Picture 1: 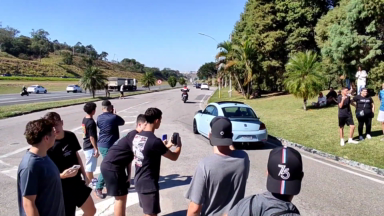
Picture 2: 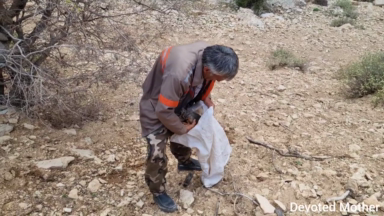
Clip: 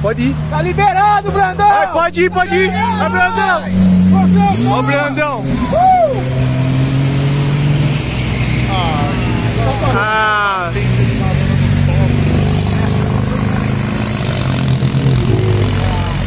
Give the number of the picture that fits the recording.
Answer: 1